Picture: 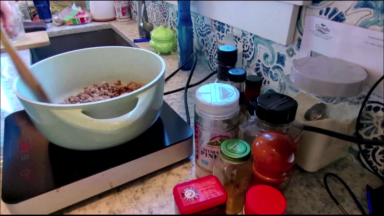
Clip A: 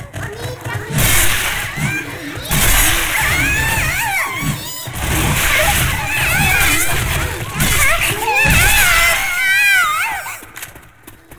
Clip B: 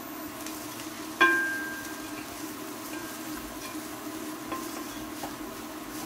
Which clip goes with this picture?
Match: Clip B